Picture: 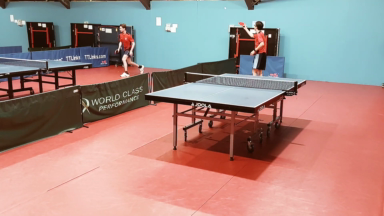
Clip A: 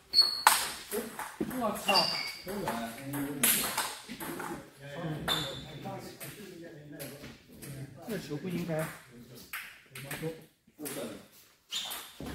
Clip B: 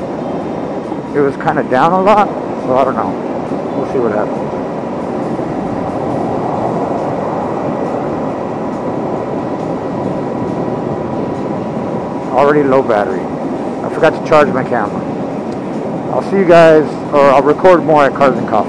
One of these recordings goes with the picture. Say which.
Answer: A